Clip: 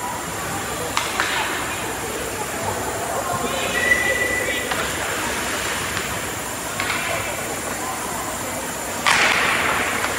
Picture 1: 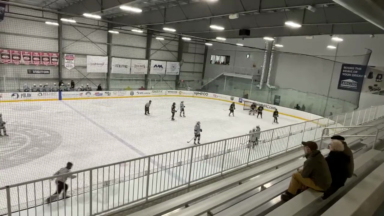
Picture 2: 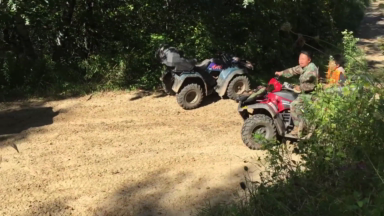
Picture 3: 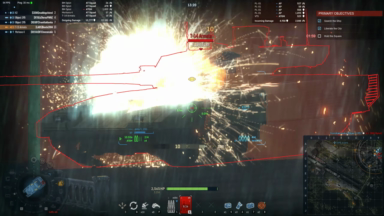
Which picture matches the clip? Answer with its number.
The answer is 1